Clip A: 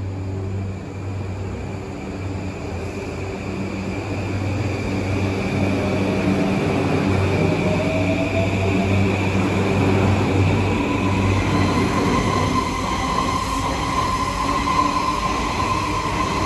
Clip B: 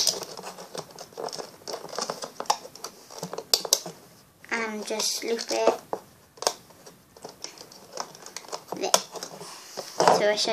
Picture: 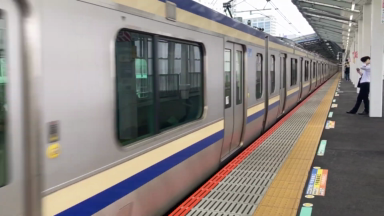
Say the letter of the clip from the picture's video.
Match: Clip A